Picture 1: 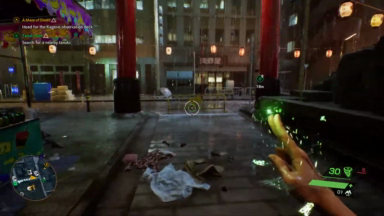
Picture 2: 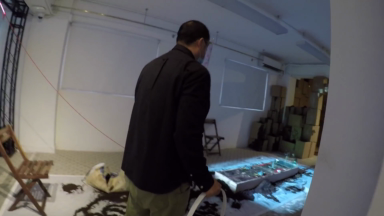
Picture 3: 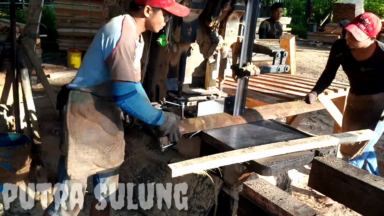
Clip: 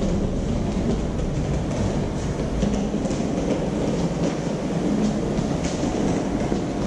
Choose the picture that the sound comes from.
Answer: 2